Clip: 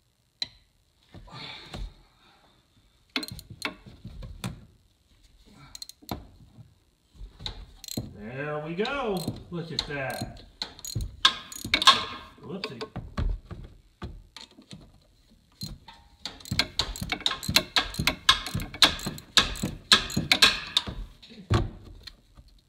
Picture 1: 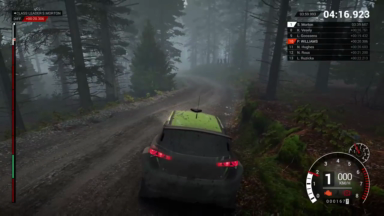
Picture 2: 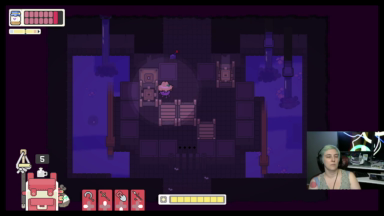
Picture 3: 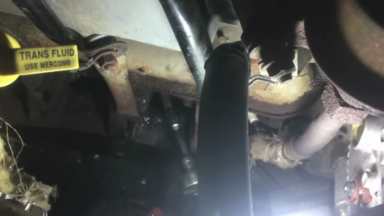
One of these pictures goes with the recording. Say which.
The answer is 3